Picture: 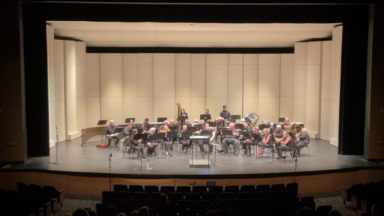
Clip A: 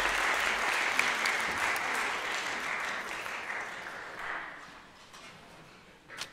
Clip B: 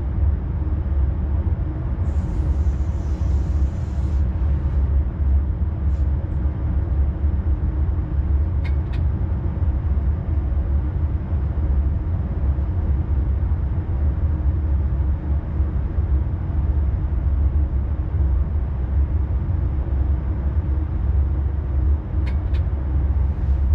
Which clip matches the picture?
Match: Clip A